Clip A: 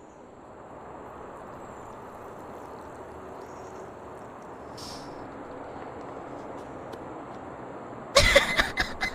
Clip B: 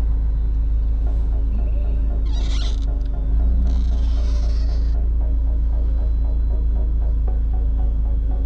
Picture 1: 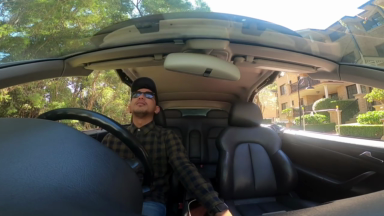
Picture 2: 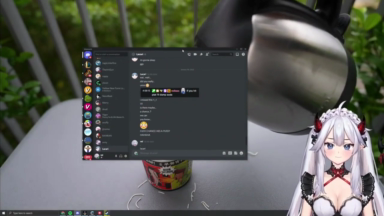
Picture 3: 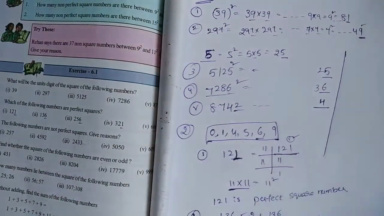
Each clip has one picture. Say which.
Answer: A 2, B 1